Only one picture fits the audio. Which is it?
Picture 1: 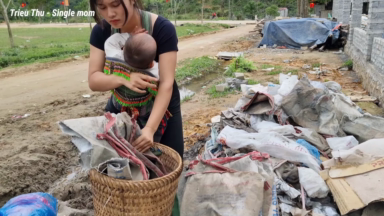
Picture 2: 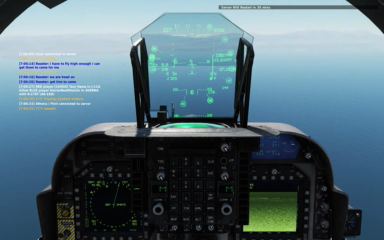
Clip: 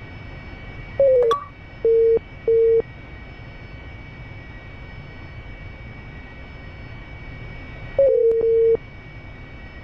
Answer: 2